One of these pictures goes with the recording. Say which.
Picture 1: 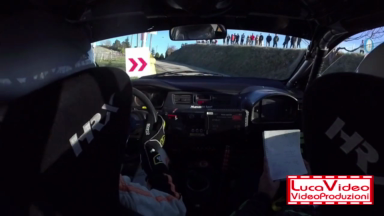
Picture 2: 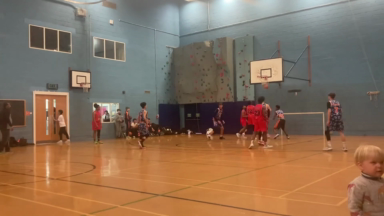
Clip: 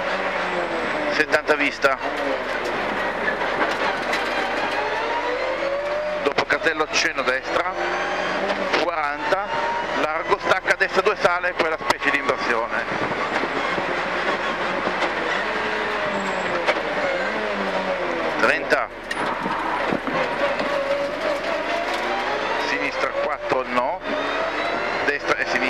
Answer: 1